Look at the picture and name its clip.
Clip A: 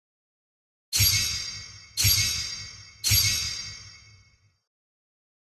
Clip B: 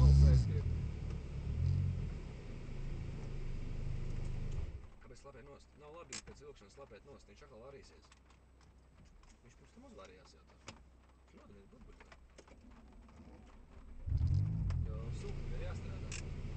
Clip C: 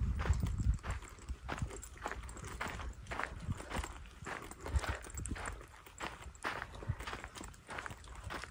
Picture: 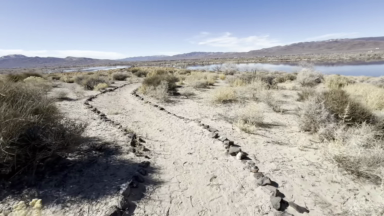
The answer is C